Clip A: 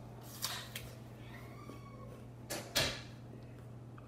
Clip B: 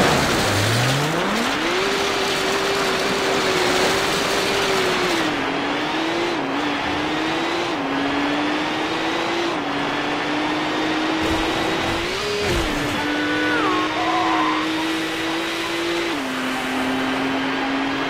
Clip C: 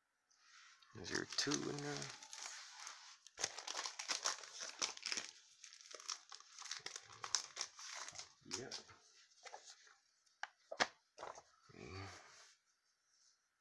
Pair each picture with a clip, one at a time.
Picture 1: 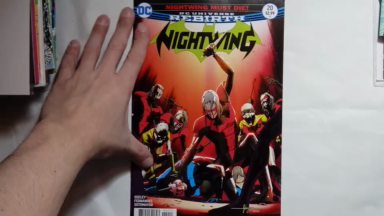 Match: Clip C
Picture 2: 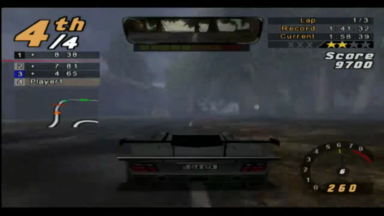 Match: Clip B